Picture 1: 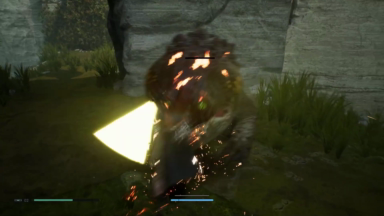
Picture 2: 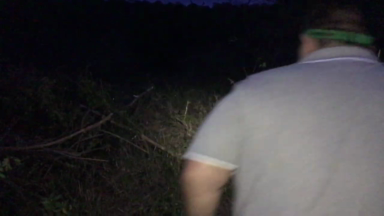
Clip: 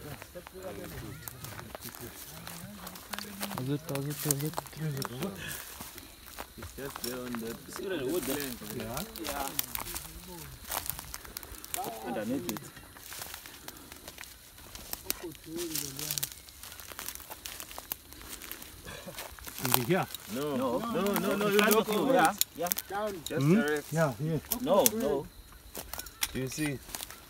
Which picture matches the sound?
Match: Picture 2